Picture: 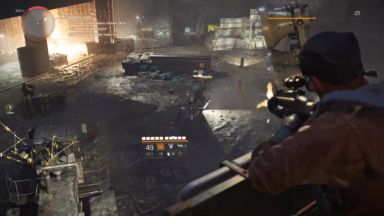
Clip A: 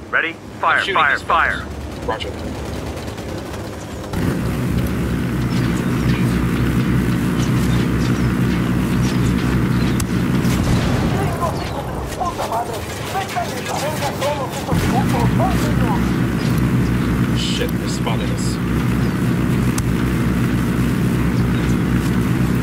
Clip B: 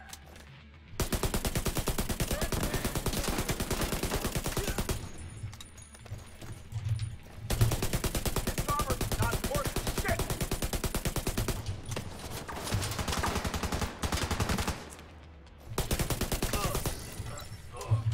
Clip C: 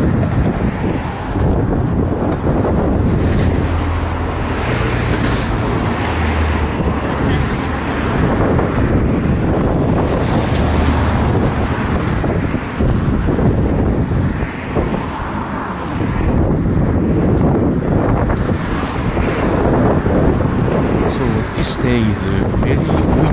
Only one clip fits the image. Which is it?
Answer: B